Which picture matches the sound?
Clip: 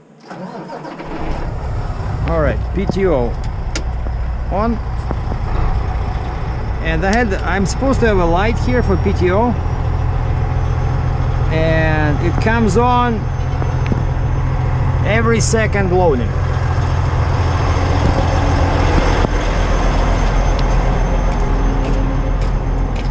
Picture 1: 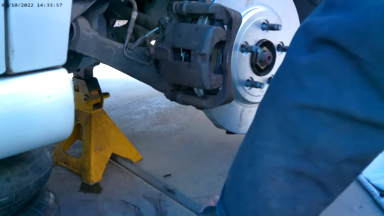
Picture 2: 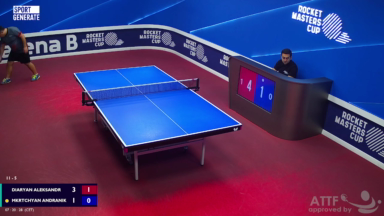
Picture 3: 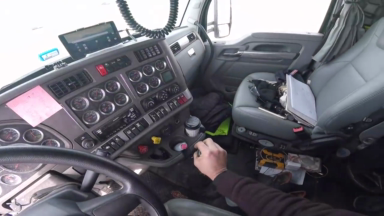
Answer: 3